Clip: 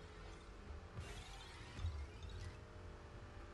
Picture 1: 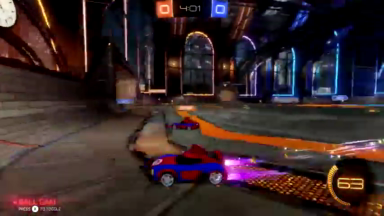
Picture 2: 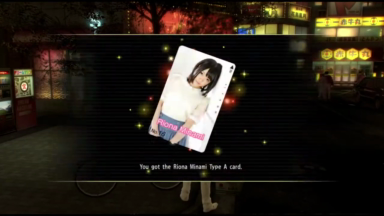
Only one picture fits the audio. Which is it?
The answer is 1